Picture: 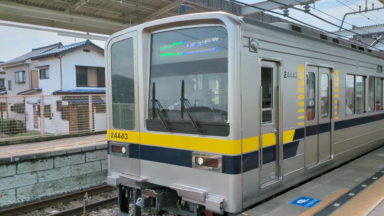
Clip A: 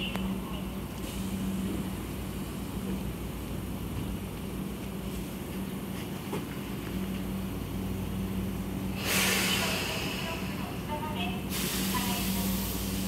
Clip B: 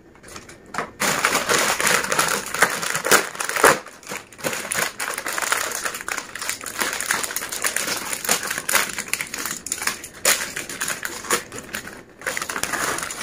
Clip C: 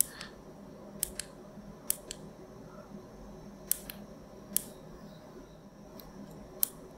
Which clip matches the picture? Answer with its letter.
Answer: A